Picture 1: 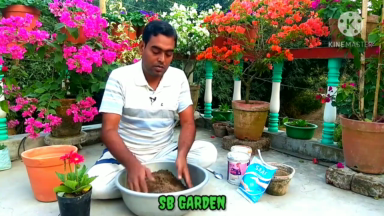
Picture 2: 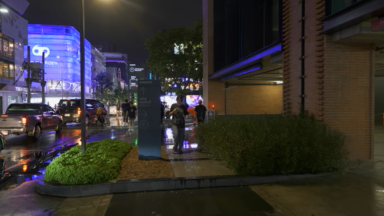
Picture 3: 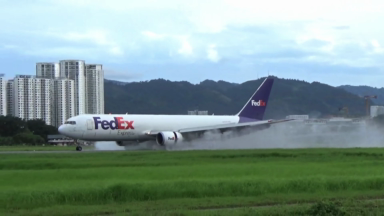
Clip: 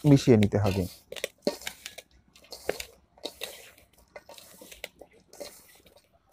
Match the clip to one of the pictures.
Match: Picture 1